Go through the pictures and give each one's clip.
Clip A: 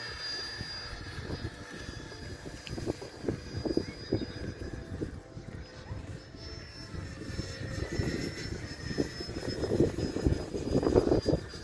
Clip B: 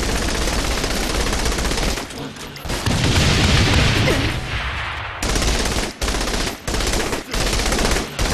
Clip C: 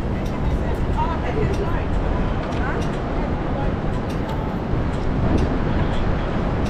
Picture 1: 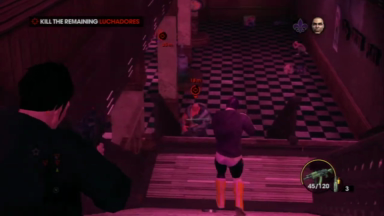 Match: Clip B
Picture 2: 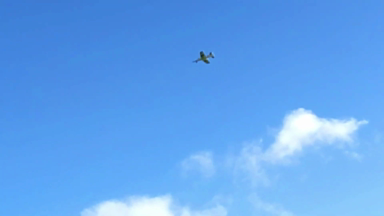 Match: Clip A